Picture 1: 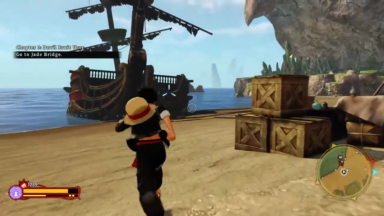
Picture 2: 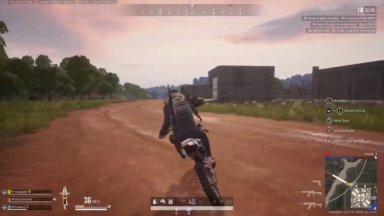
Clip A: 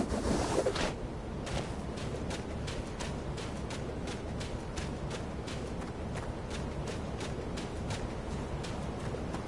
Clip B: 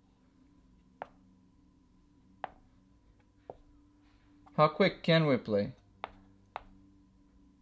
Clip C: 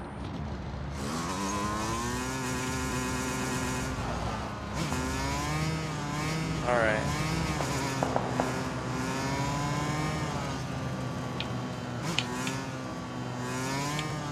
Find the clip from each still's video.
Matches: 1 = A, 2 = C